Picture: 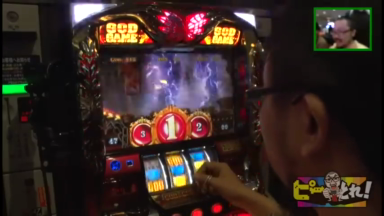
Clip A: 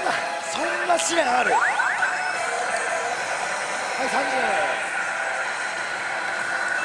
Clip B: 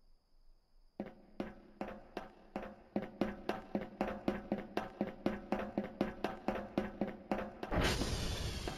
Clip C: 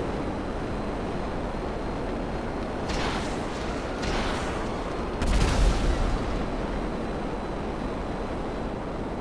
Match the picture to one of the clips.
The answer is A